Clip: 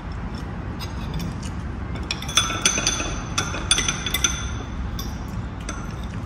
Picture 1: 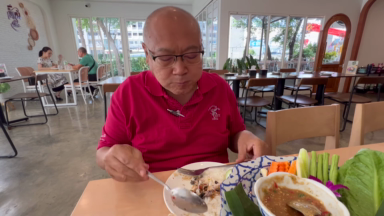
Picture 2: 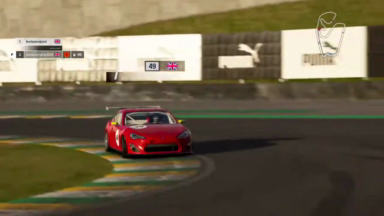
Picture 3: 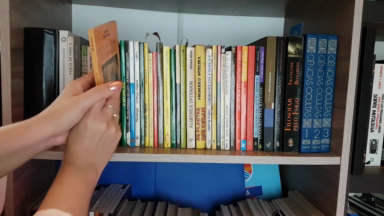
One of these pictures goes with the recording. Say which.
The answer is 1